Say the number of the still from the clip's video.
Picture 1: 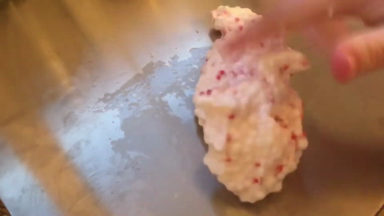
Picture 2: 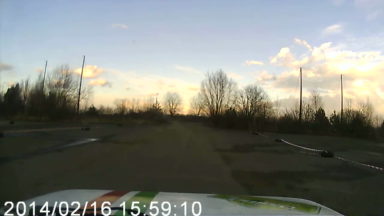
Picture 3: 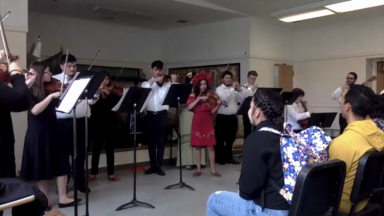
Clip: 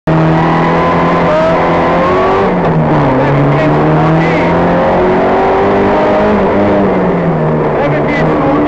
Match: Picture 2